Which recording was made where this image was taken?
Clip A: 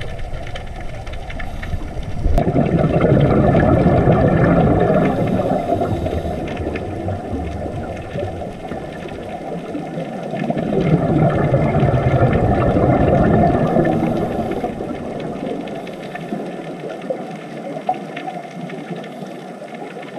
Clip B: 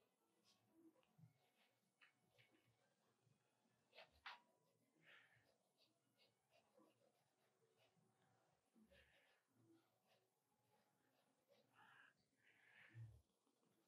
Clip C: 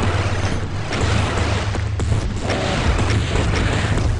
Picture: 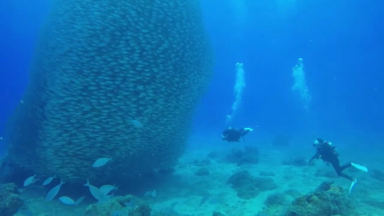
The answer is A